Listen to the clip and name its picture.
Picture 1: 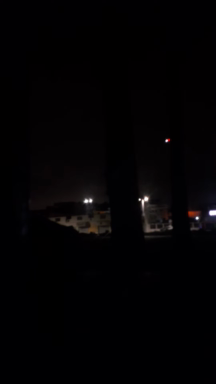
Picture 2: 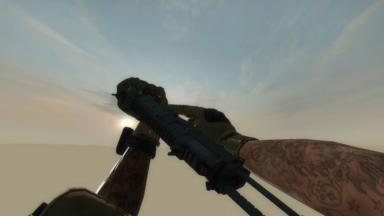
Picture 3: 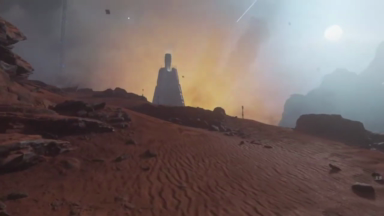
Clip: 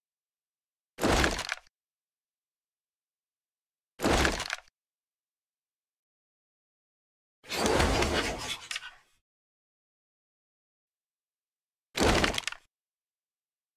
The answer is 2